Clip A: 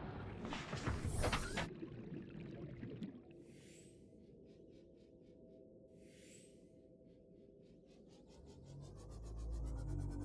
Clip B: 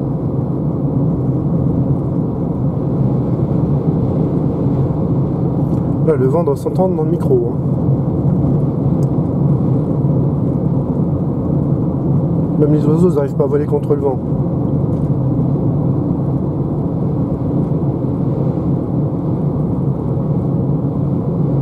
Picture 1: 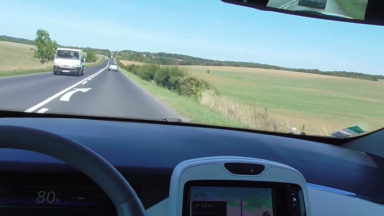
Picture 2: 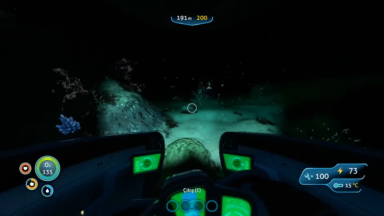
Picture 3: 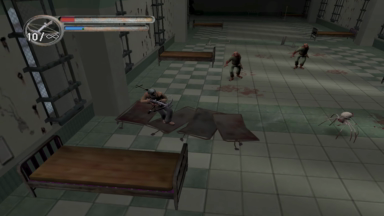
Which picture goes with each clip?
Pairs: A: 2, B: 1